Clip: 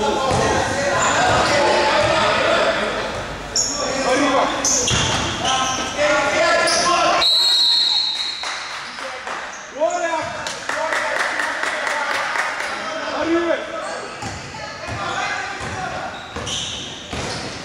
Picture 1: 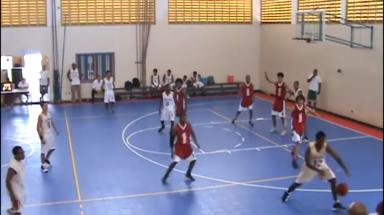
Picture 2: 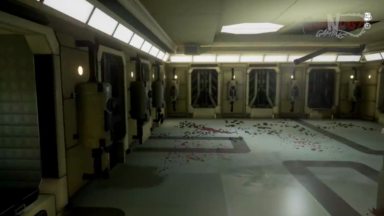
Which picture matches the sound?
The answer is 1